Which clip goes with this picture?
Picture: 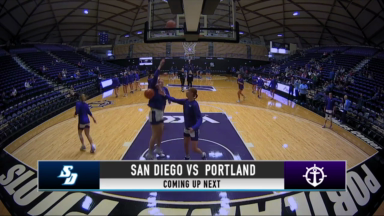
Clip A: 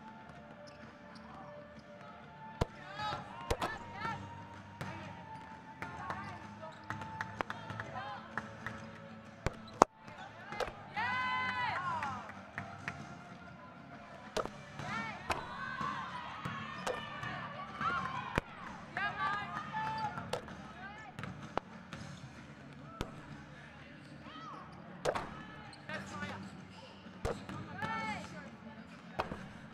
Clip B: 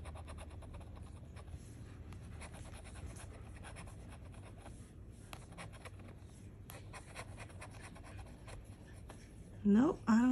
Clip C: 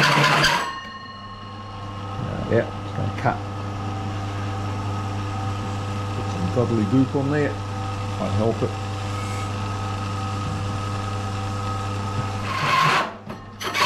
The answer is A